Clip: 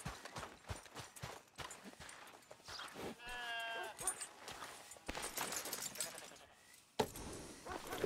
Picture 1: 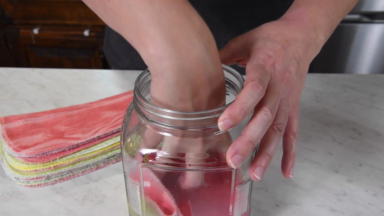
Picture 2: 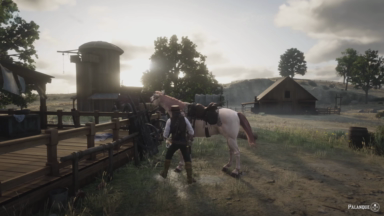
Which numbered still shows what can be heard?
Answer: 2